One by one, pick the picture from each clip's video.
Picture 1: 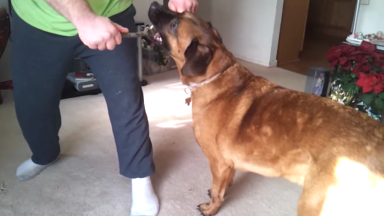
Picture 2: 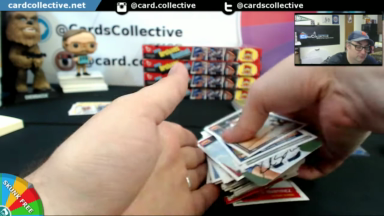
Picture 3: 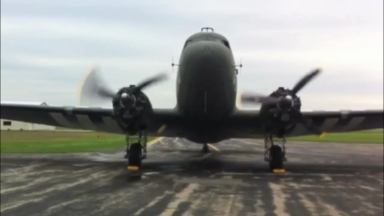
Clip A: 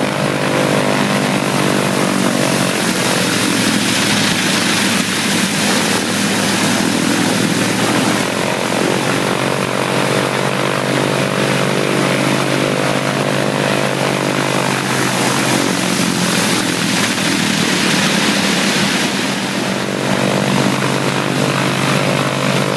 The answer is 3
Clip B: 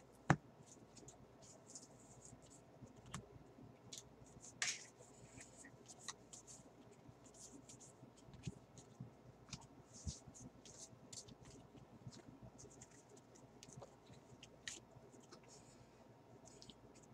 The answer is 2